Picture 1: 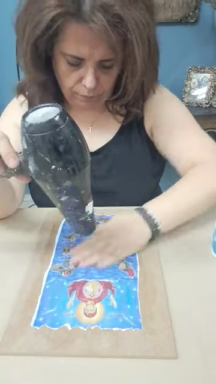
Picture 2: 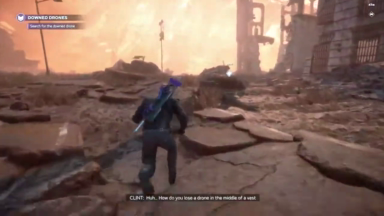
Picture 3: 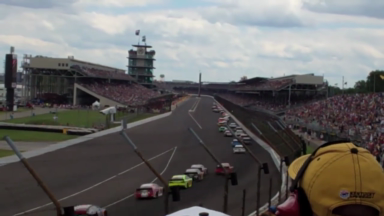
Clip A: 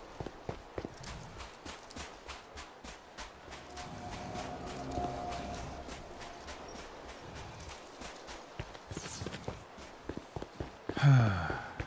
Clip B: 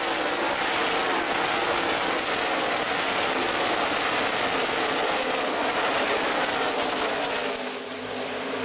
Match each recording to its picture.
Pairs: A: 2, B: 3